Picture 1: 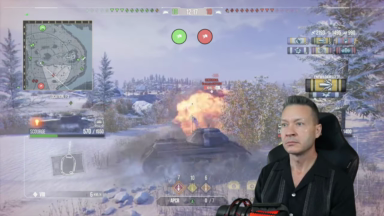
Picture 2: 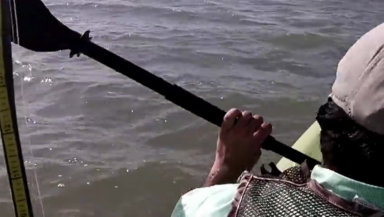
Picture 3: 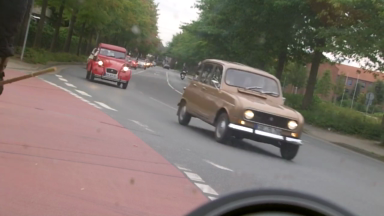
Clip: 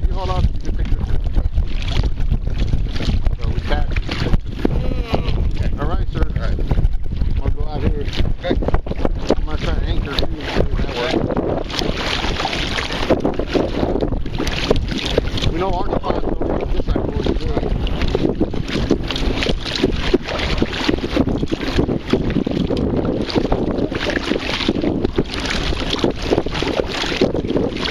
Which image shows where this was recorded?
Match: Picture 2